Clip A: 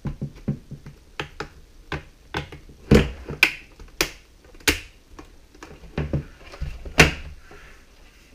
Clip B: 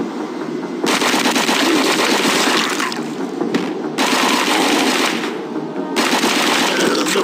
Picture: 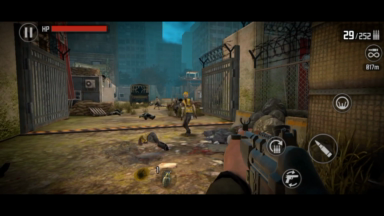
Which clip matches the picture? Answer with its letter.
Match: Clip B